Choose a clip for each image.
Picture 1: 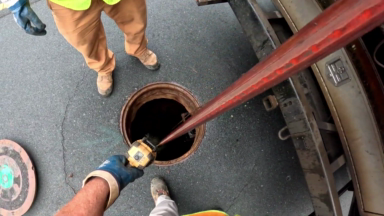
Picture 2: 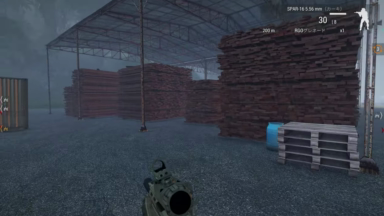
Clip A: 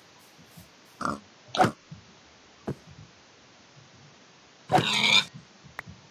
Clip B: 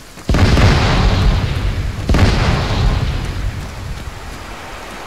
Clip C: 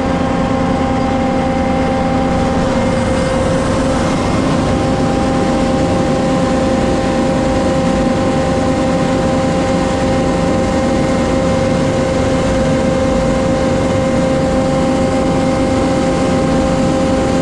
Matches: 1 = C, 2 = B